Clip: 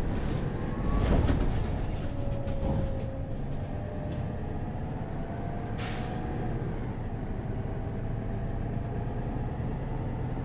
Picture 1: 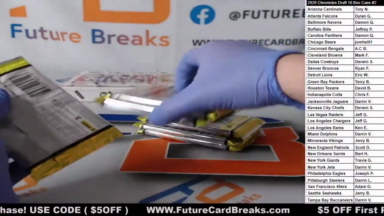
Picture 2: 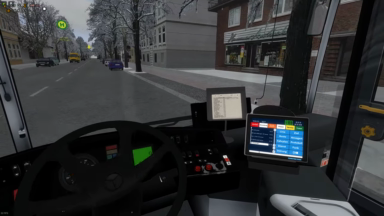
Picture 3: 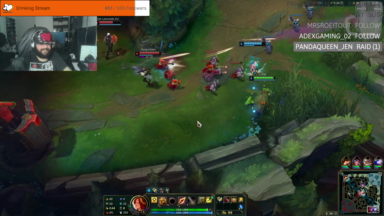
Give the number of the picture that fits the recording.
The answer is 2